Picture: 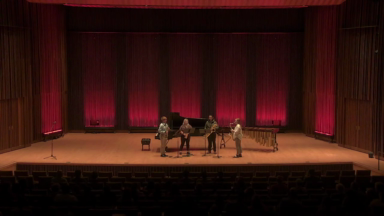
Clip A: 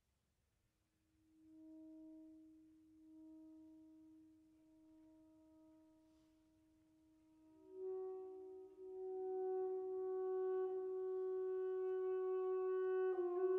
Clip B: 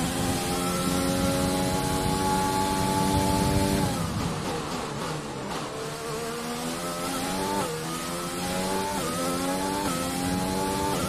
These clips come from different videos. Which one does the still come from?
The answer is A